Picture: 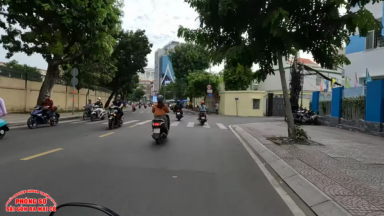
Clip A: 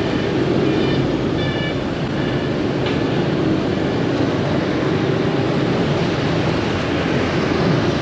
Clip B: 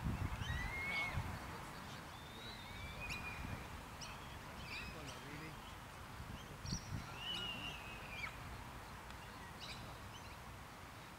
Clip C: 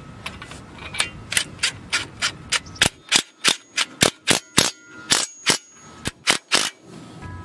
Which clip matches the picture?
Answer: A